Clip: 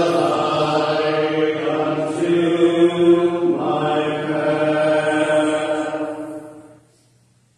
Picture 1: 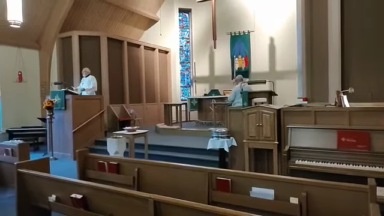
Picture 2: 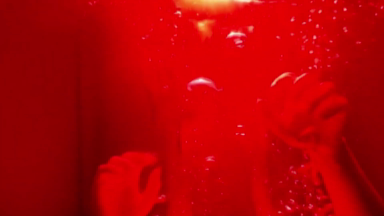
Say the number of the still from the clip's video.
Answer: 1